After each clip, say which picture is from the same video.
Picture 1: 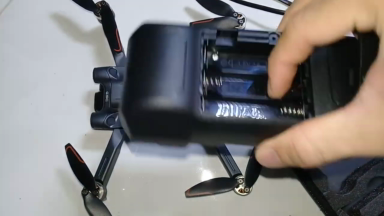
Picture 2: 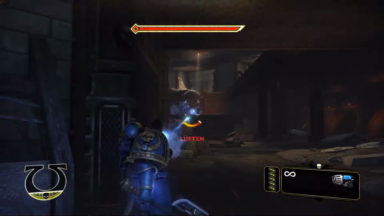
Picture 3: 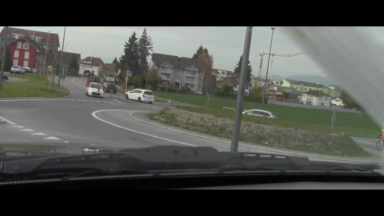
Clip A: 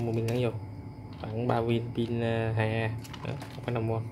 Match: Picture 1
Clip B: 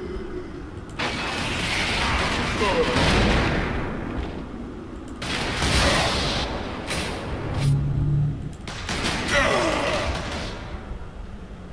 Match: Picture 2